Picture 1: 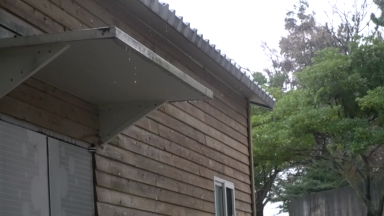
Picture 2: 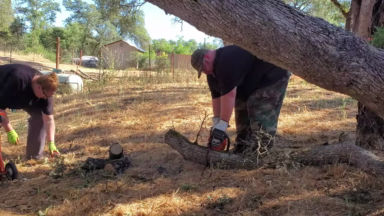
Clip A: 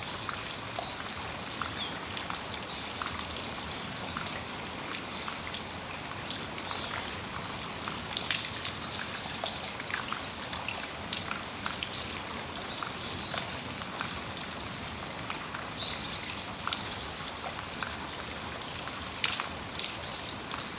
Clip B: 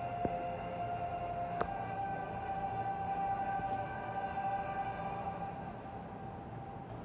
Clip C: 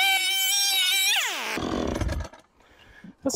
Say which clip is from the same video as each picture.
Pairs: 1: A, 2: C